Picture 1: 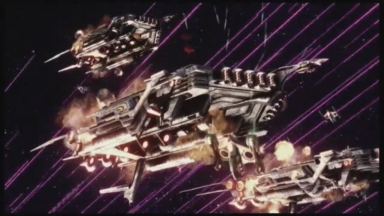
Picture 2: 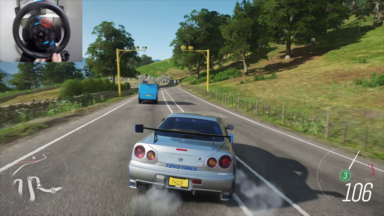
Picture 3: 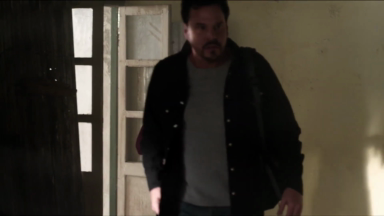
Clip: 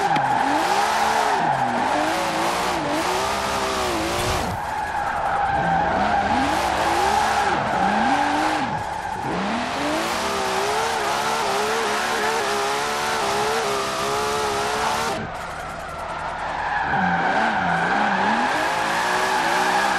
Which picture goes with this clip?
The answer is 2